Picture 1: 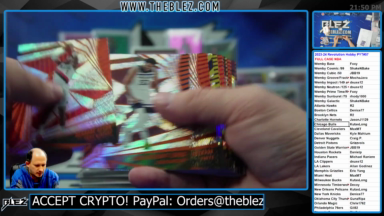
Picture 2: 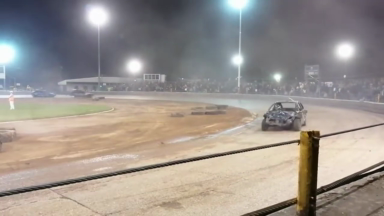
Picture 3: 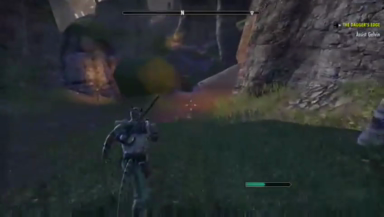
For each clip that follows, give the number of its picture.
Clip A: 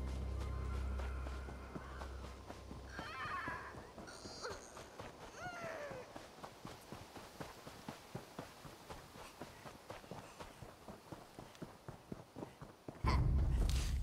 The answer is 3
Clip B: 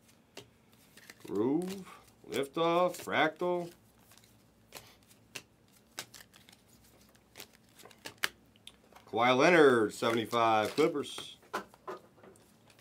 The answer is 1